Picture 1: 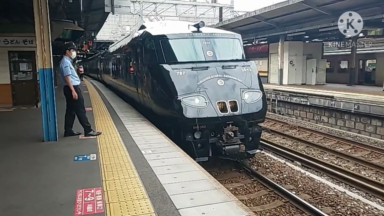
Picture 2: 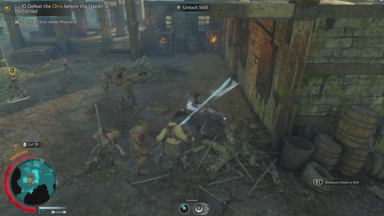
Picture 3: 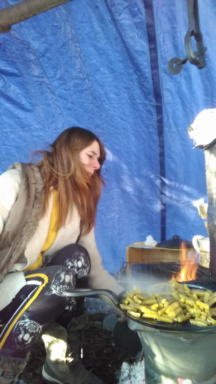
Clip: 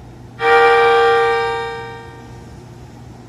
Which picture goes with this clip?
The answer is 1